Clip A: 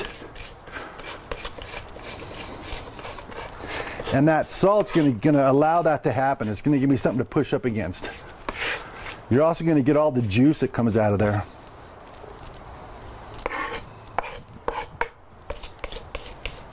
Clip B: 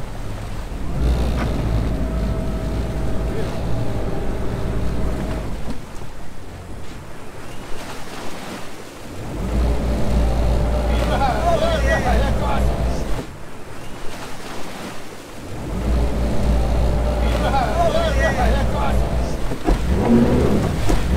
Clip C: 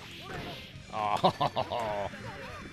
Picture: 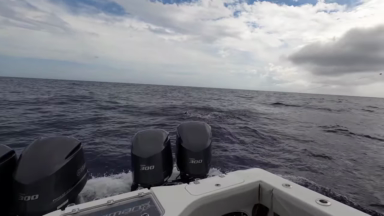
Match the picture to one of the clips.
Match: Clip B